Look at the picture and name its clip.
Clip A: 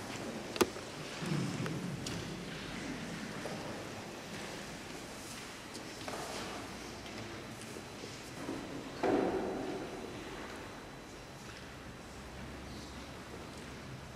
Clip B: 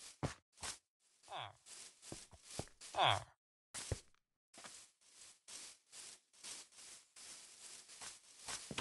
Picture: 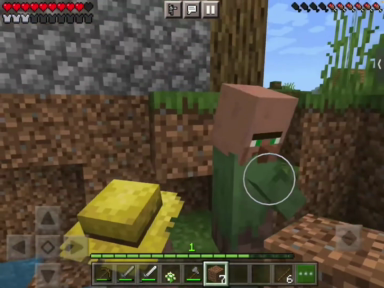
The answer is B